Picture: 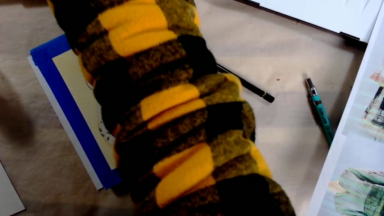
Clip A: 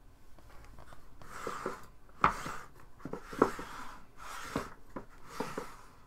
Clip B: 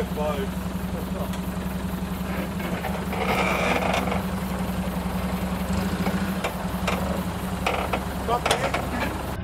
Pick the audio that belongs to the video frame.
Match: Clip A